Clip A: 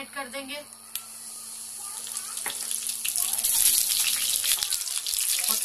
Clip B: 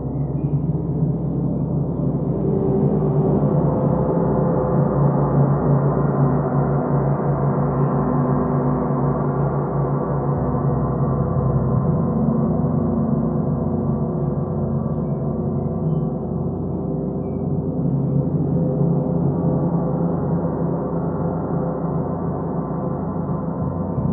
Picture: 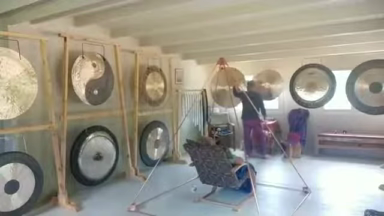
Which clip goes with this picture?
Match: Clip B